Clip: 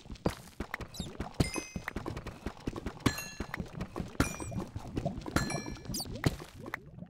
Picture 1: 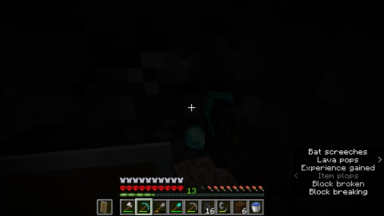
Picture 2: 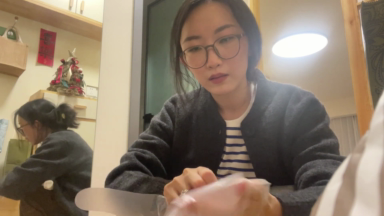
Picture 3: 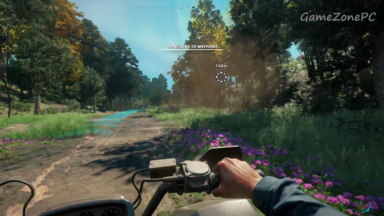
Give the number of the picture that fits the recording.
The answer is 1